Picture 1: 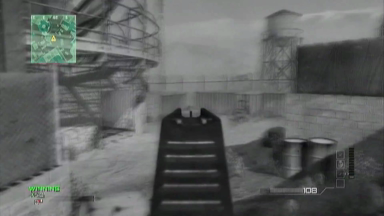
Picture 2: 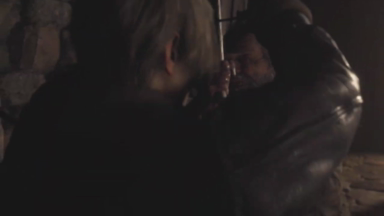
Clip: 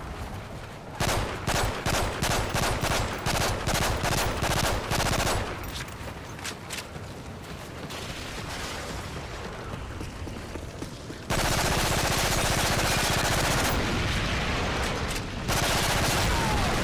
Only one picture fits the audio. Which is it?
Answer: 1